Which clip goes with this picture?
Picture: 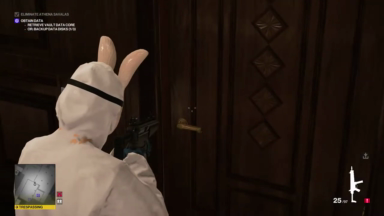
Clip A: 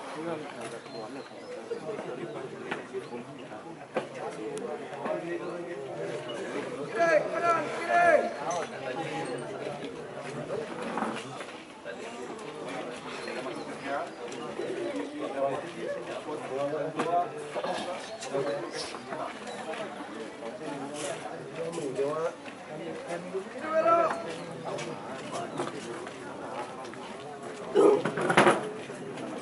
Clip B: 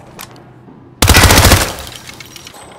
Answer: B